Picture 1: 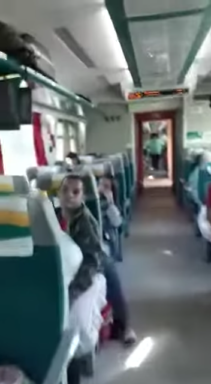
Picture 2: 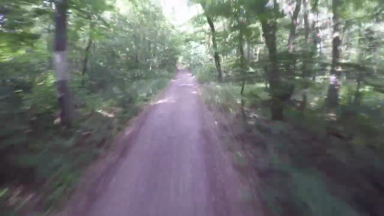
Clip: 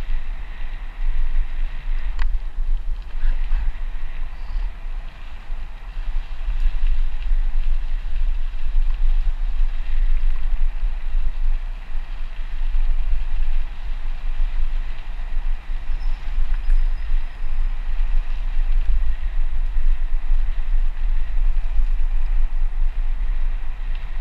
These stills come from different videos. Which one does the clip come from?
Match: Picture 2